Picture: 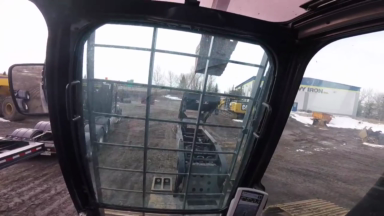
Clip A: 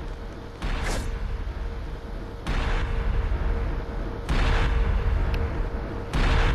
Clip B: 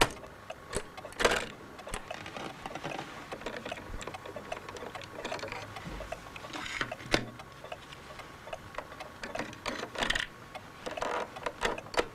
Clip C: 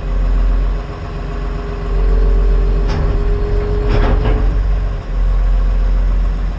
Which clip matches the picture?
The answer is C